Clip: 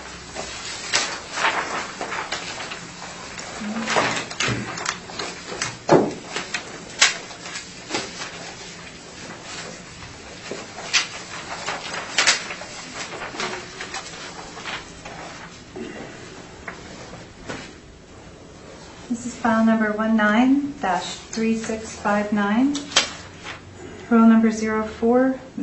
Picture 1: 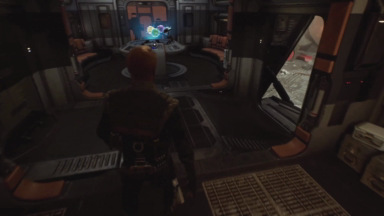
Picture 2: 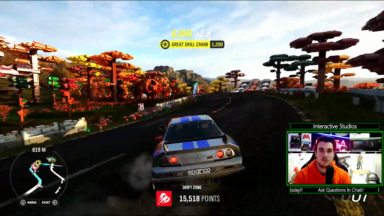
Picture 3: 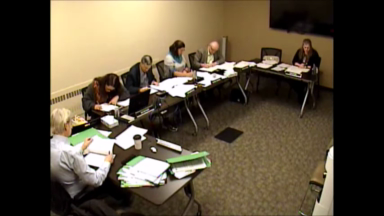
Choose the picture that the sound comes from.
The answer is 3